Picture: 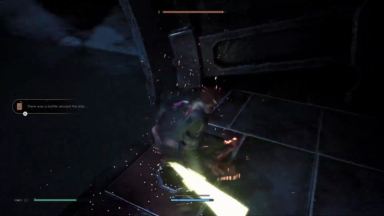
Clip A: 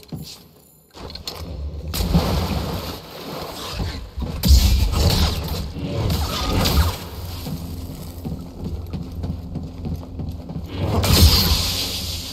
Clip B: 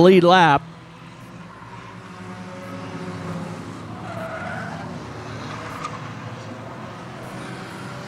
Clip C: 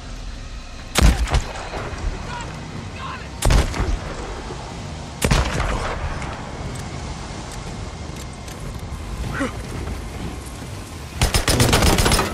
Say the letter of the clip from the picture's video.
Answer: A